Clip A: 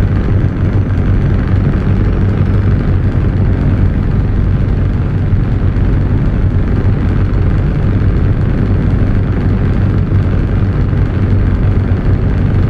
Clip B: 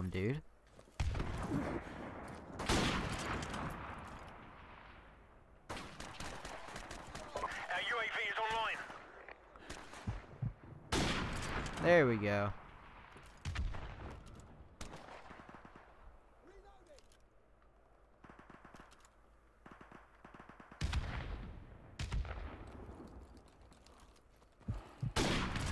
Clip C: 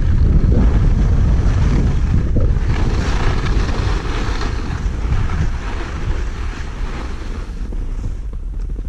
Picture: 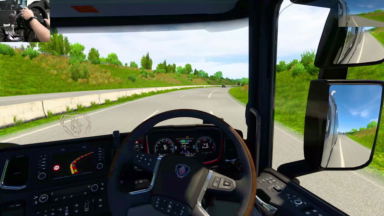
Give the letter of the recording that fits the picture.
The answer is A